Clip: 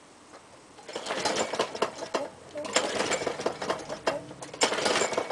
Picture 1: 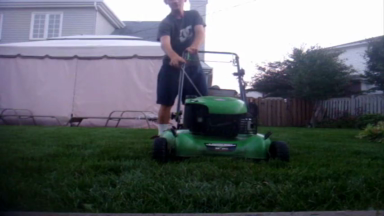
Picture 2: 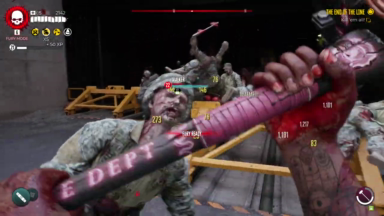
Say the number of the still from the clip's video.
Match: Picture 1